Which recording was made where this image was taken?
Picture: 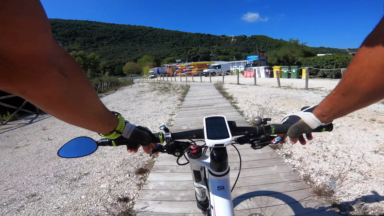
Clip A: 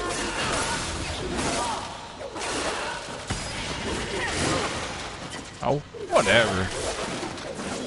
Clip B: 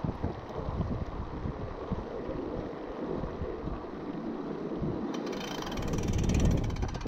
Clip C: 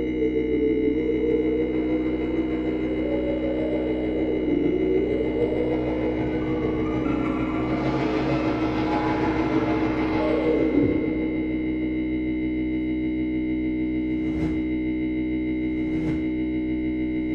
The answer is B